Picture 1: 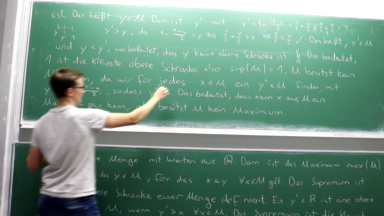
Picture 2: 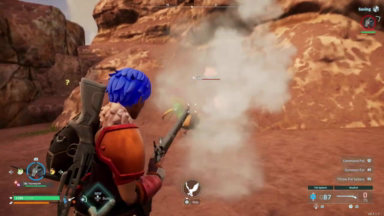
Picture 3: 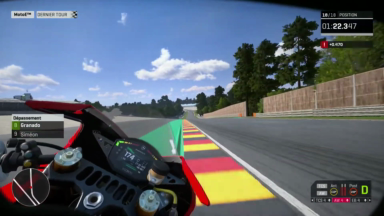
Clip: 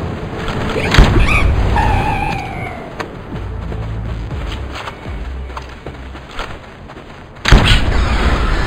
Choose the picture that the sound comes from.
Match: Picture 2